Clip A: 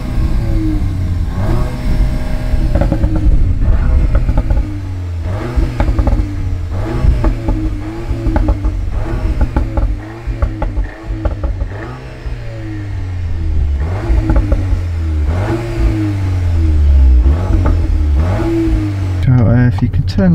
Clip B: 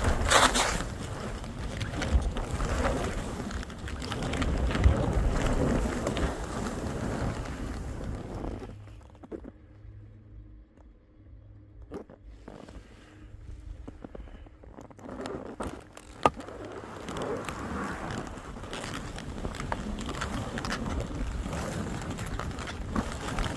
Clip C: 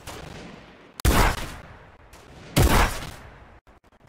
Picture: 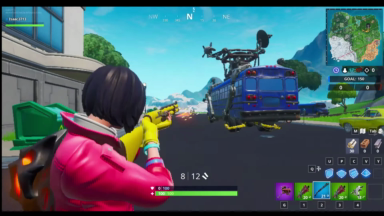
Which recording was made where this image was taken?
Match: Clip C